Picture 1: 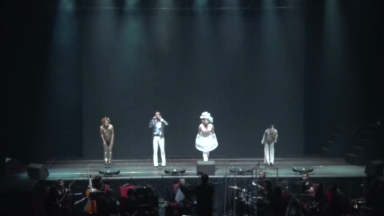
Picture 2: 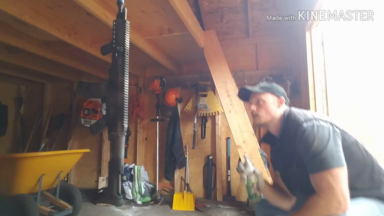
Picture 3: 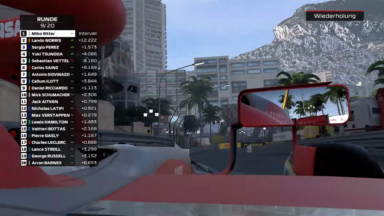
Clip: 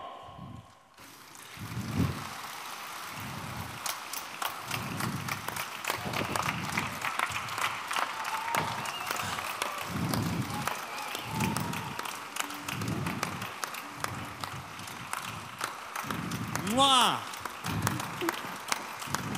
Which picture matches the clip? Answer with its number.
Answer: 1